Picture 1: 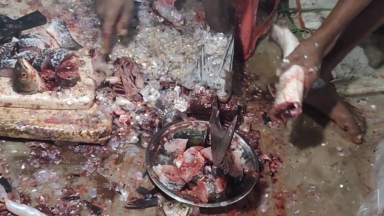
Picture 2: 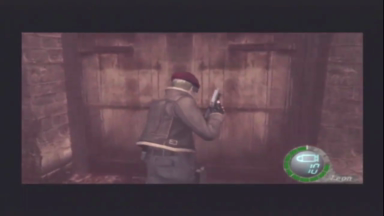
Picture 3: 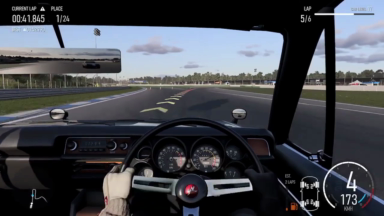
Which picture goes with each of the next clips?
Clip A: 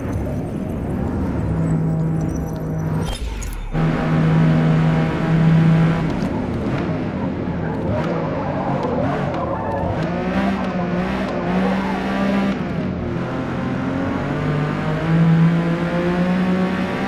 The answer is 3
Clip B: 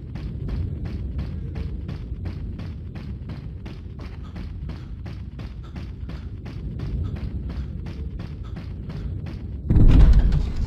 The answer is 2